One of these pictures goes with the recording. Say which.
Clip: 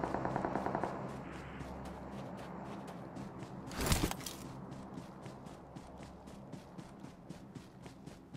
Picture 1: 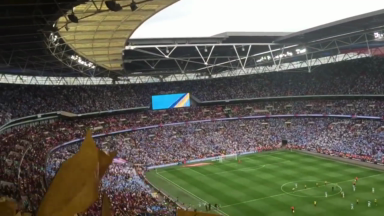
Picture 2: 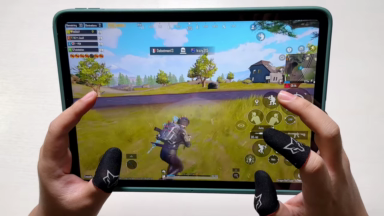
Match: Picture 2